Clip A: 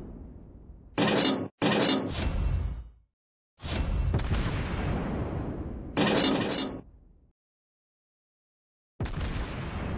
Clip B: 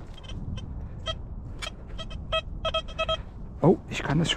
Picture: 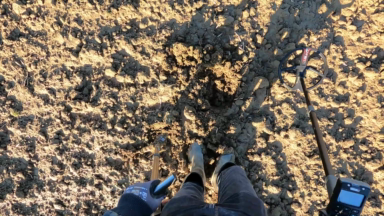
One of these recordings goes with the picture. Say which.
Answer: B